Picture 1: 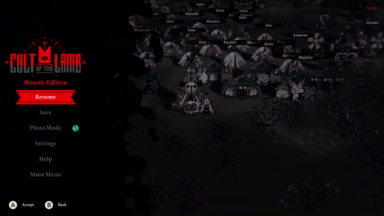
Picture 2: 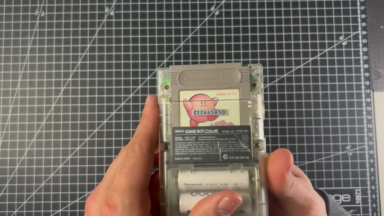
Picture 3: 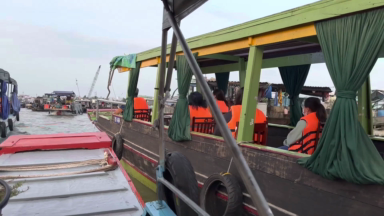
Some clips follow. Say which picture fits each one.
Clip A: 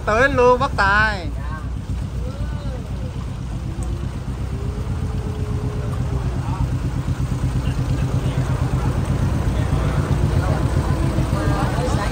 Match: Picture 3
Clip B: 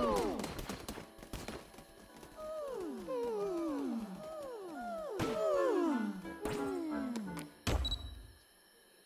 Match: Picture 1